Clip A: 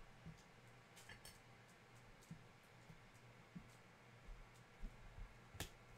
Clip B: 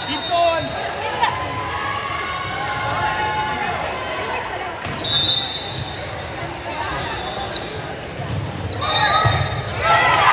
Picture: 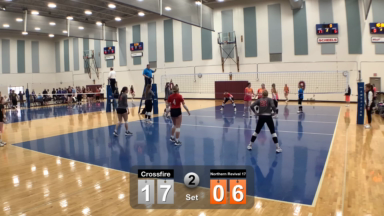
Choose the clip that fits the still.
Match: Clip B